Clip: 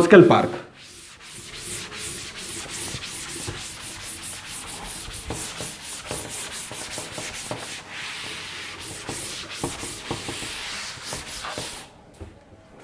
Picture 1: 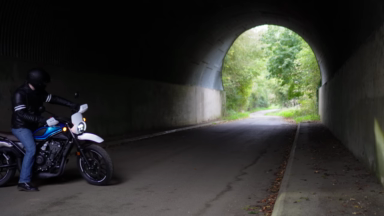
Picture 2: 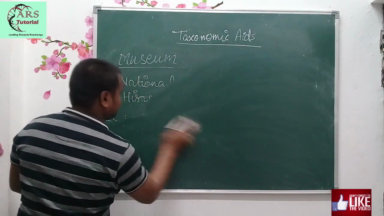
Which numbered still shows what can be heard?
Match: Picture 2